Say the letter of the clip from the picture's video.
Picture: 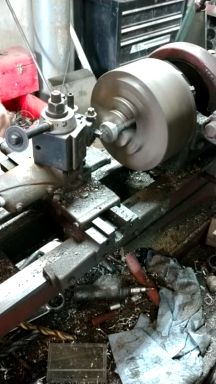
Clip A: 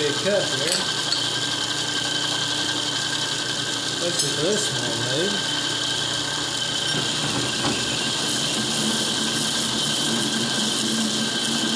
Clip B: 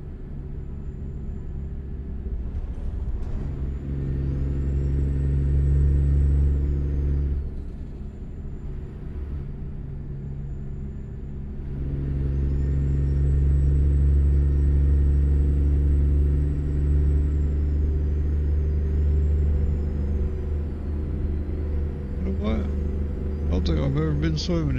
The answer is A